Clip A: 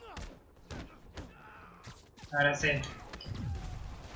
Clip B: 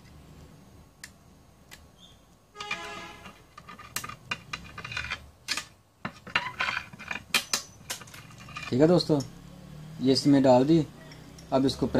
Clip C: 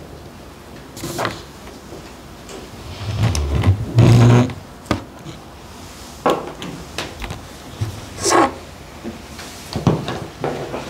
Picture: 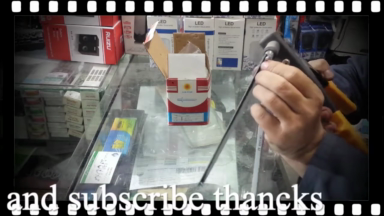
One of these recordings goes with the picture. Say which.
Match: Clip B